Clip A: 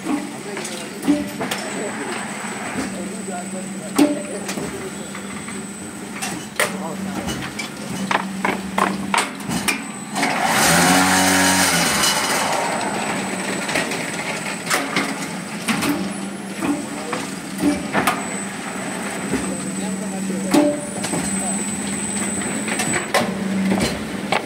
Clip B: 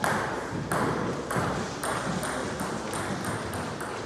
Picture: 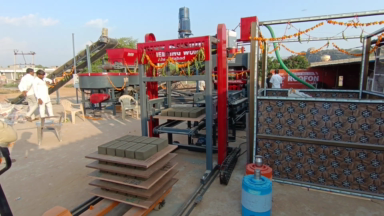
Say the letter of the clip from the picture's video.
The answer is A